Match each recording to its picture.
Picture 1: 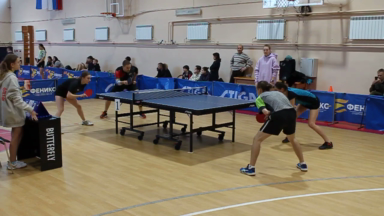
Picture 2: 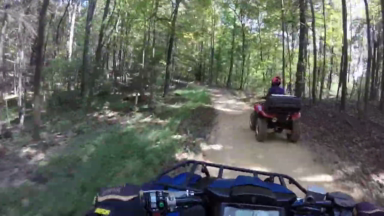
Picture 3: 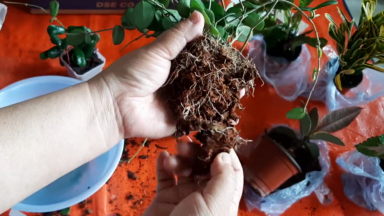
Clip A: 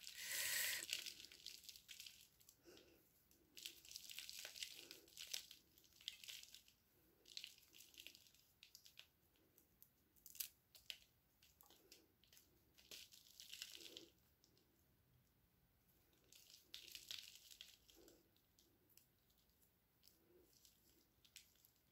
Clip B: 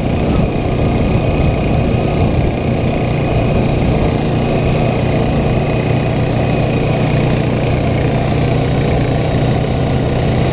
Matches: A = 3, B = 2